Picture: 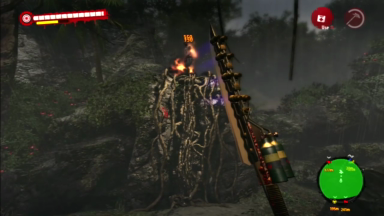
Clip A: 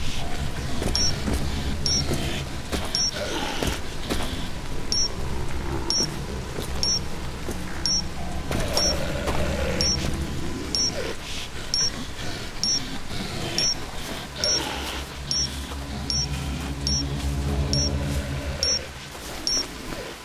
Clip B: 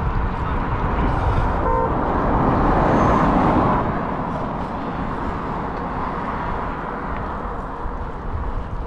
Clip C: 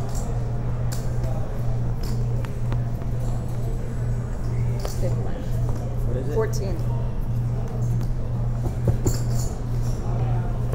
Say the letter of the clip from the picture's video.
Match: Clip A